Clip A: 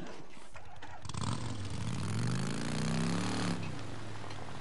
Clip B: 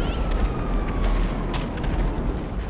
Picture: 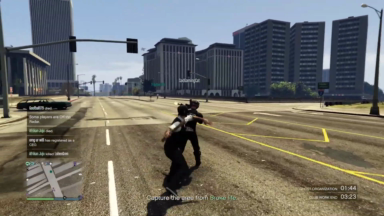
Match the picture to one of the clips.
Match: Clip B